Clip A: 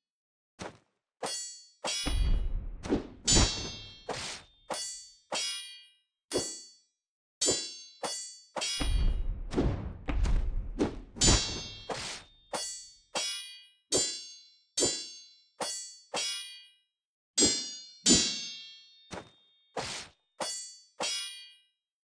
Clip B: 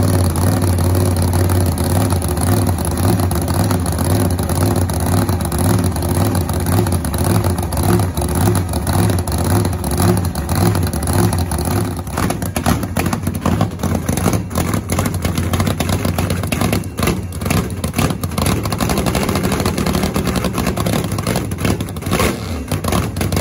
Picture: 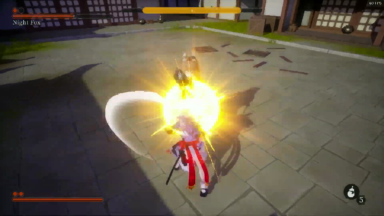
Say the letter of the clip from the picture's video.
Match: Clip A